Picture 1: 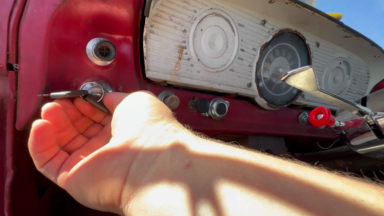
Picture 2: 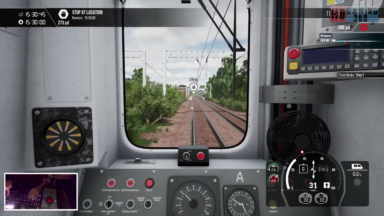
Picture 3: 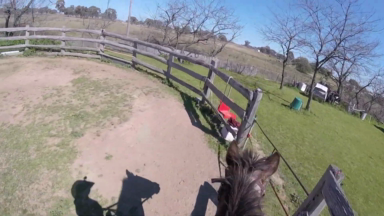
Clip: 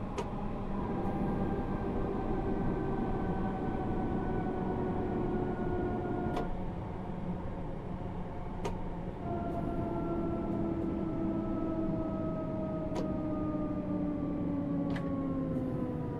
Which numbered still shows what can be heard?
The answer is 2